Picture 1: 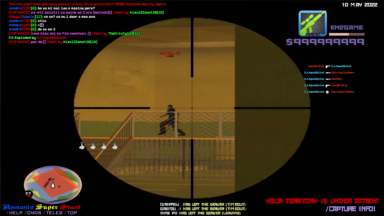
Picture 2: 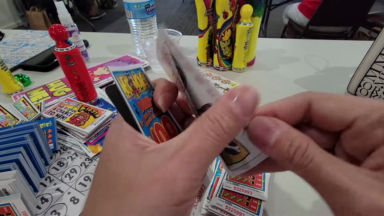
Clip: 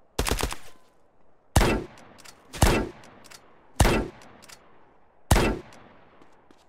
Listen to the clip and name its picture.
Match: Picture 1